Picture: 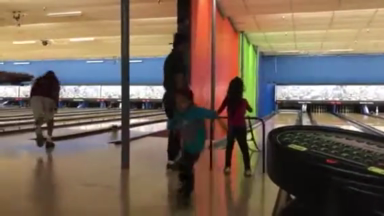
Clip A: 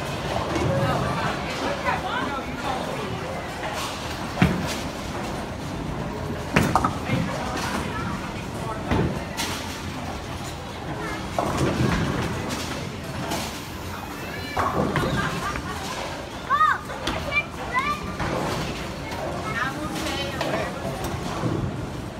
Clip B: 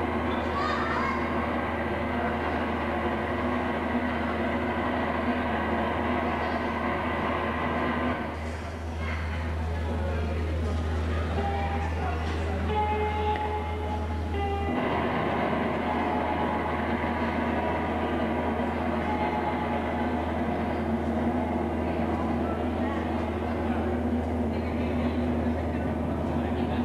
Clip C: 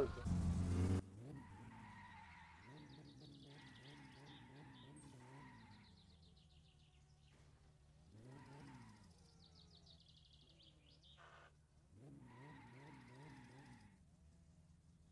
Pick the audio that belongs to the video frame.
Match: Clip A